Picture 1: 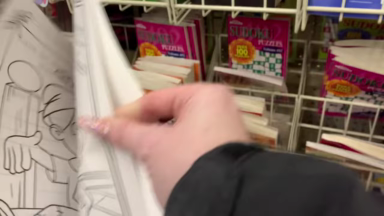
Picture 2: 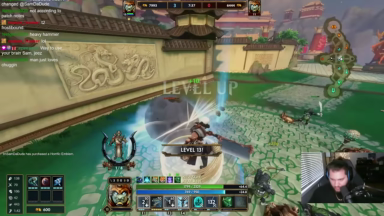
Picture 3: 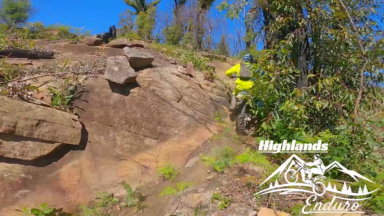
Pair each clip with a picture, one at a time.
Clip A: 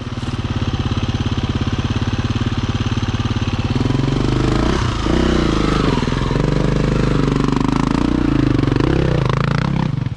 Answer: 3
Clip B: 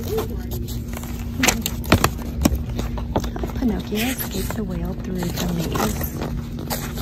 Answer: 1